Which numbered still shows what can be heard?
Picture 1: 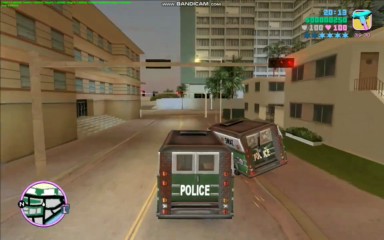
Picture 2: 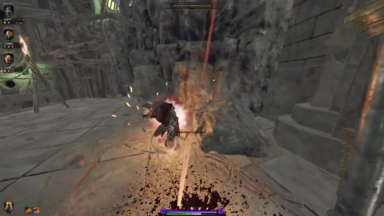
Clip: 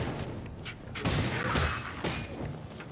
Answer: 2